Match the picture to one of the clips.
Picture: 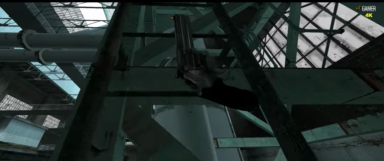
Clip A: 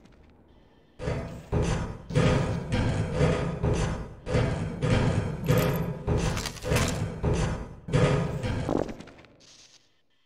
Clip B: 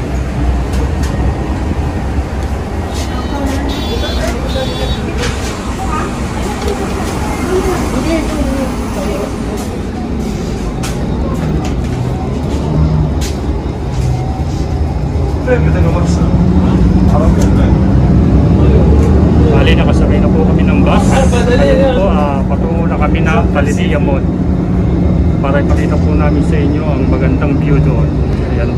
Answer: A